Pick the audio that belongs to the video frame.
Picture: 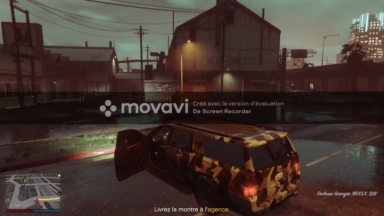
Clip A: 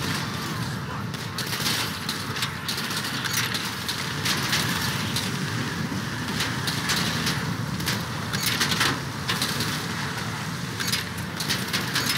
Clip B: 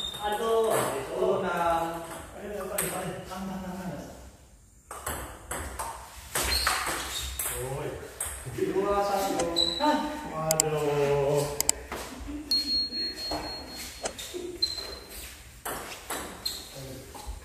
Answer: A